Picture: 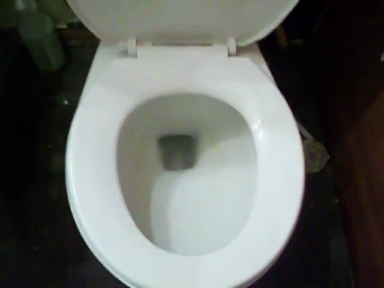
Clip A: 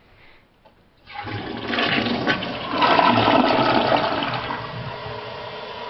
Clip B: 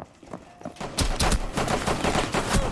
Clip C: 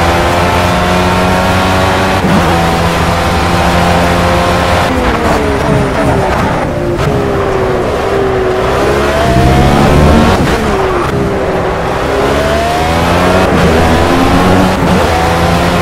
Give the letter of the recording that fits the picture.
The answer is A